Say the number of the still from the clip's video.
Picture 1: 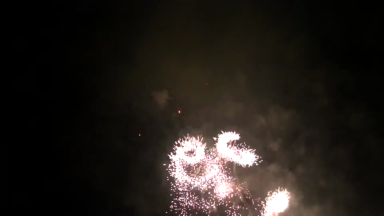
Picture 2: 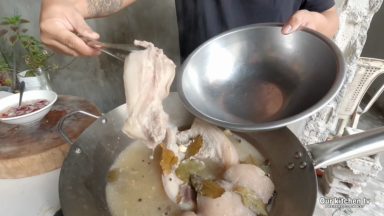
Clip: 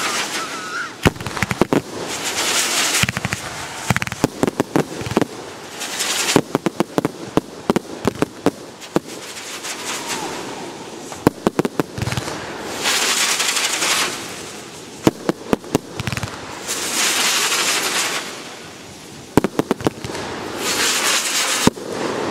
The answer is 1